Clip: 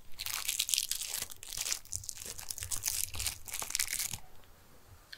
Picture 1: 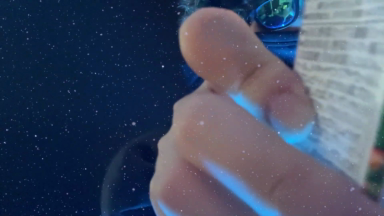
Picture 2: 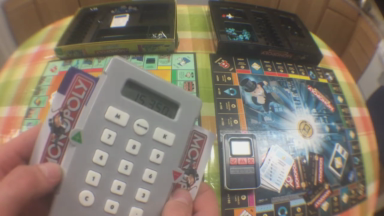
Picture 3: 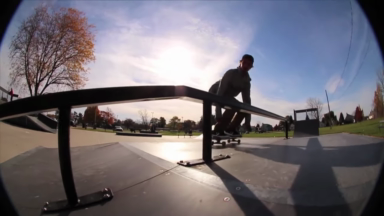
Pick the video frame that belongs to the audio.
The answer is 1